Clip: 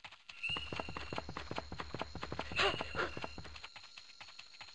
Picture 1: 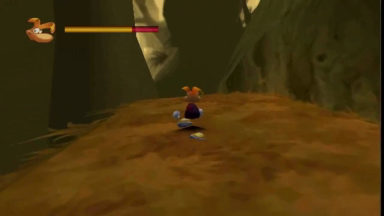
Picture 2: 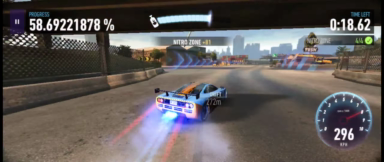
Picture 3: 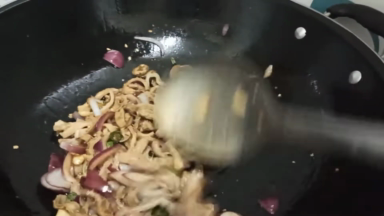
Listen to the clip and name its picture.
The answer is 1